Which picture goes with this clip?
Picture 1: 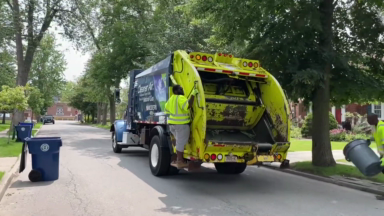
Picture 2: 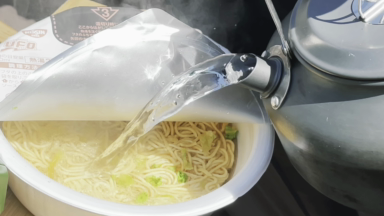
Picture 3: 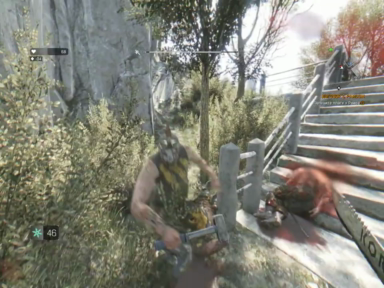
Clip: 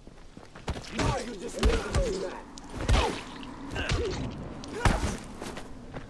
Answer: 3